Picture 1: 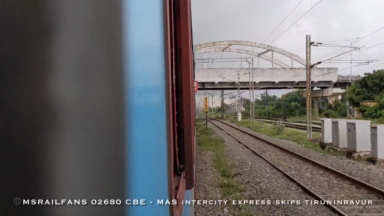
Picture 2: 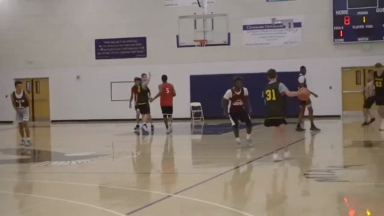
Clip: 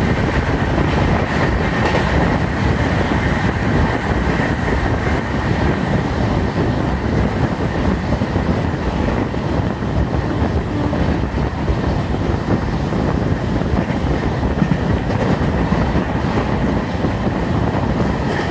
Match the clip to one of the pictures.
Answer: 1